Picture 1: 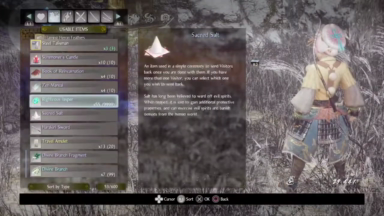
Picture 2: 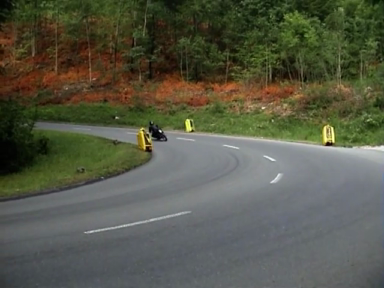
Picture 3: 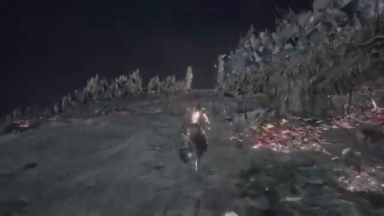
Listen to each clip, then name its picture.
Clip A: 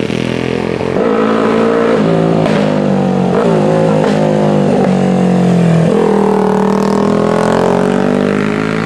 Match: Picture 2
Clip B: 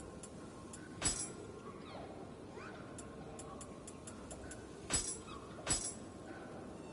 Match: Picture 1